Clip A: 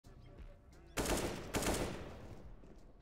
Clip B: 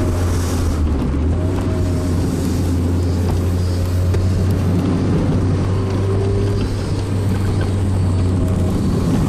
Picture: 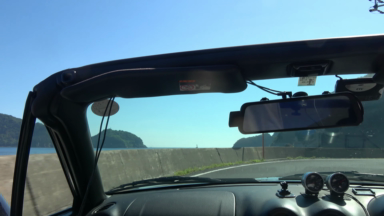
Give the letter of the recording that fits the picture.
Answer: B